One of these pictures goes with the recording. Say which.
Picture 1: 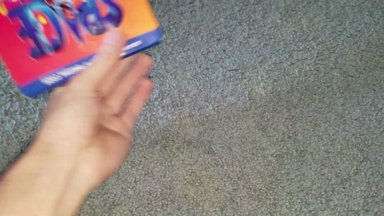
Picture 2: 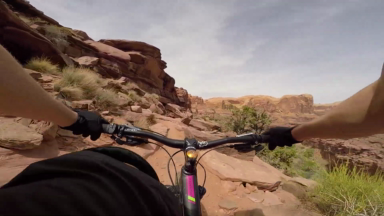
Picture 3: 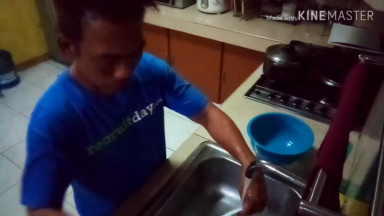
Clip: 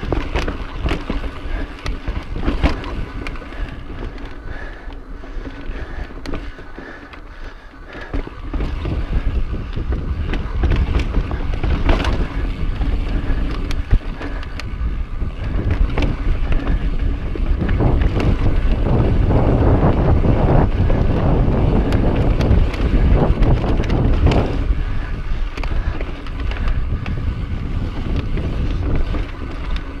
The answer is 2